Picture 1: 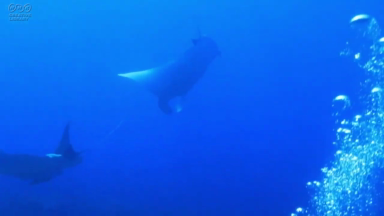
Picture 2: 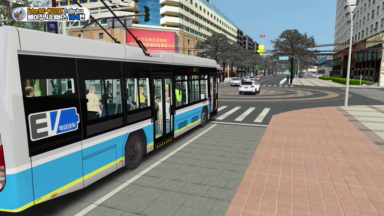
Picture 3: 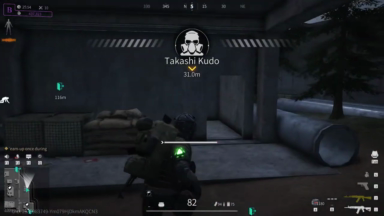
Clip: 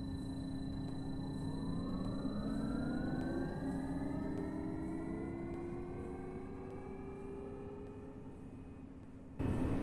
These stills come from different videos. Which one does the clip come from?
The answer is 2